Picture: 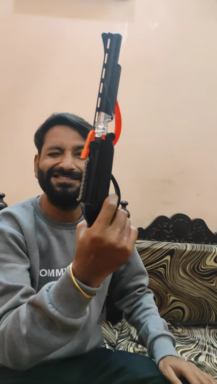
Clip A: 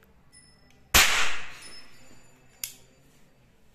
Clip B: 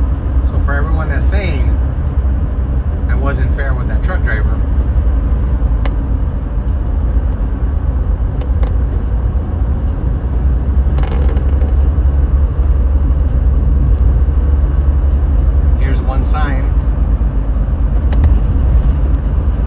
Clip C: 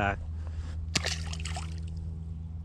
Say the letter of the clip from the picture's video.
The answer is A